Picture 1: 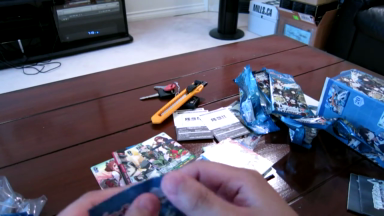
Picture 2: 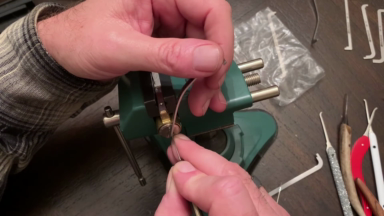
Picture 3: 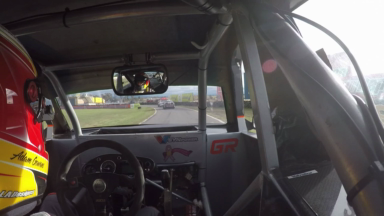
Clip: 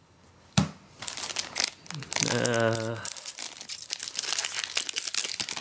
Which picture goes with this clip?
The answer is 1